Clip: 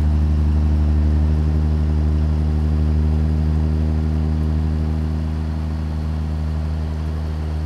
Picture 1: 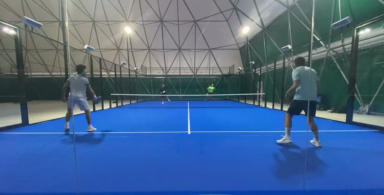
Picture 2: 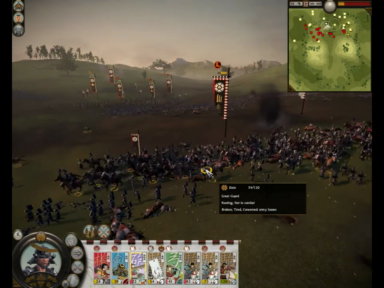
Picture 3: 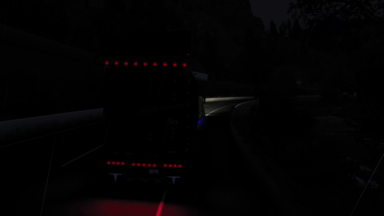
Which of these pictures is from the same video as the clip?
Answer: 3